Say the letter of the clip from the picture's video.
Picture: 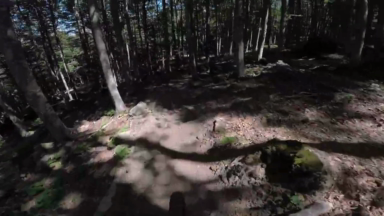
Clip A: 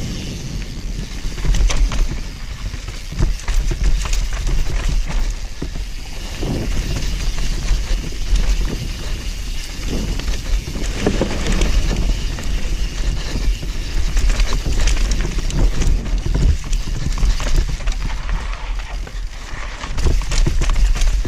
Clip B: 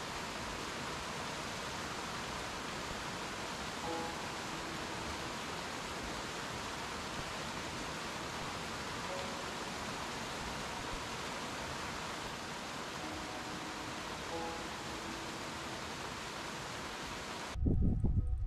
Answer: A